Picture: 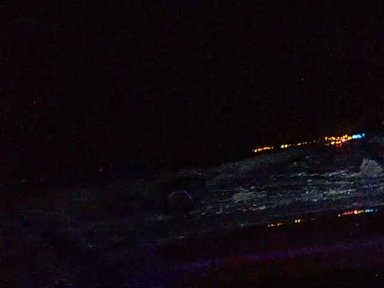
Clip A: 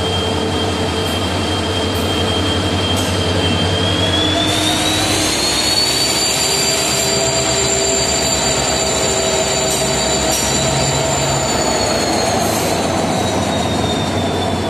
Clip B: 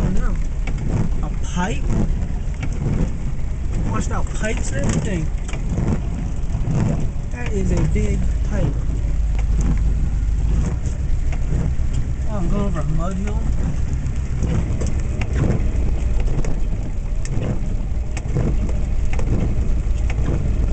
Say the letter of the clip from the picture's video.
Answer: B